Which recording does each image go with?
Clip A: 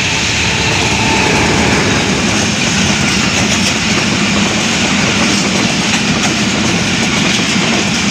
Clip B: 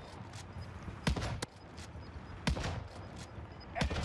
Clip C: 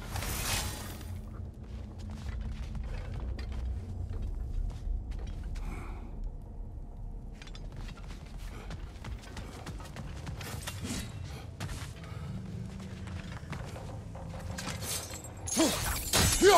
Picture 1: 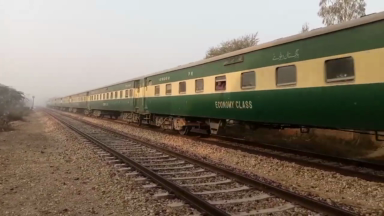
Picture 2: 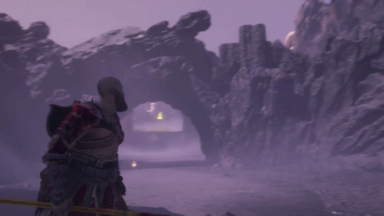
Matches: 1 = A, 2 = C